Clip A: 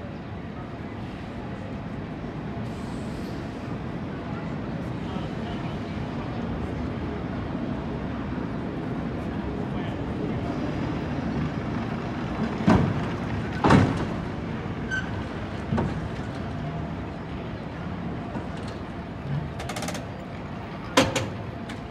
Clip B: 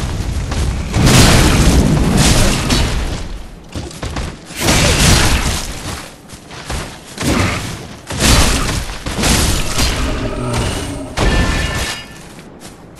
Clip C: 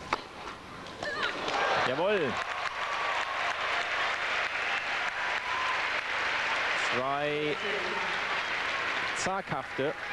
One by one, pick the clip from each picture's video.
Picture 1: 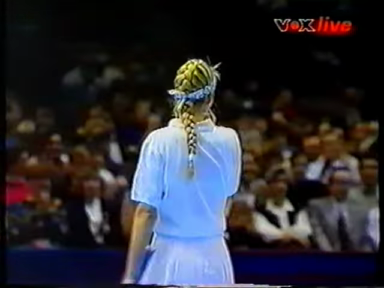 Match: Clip C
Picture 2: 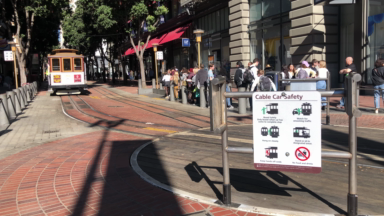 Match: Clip A